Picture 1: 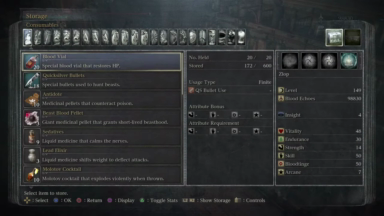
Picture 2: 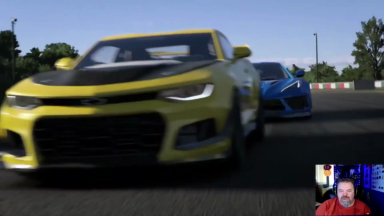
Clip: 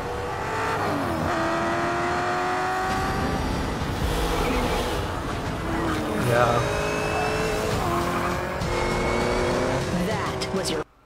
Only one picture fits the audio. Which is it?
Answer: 2